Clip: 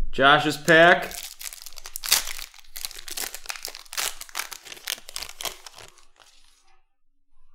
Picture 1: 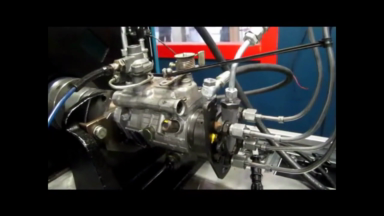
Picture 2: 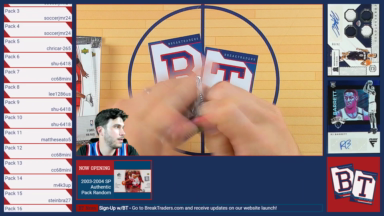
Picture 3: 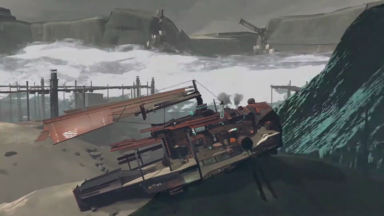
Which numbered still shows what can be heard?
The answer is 2